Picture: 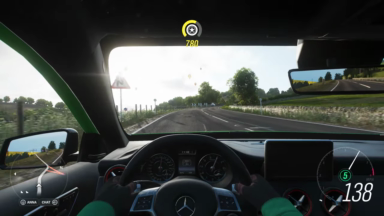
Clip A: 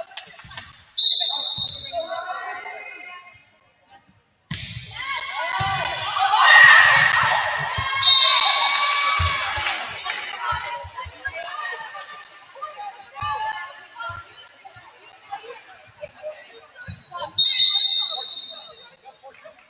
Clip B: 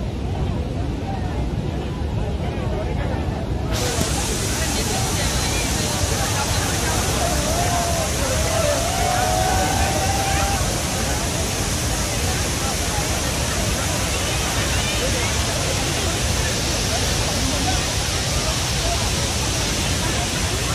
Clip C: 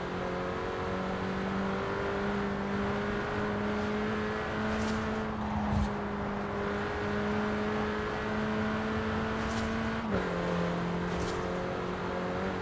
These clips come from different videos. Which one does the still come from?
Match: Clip C